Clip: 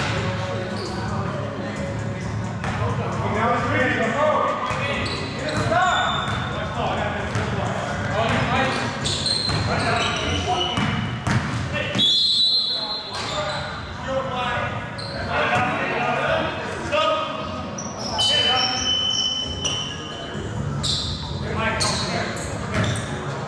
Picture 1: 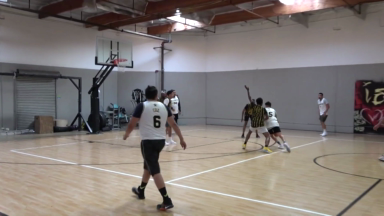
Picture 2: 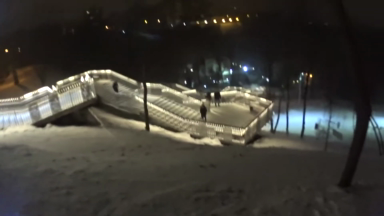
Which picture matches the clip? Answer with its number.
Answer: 1